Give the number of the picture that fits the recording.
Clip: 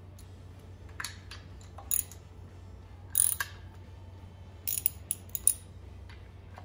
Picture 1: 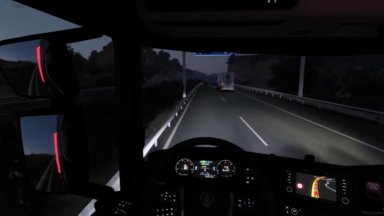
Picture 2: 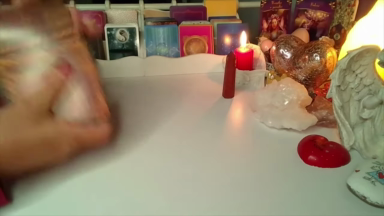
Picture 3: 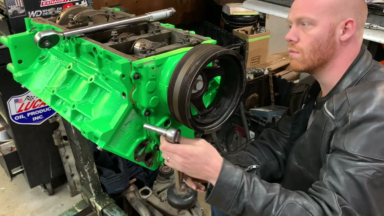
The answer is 3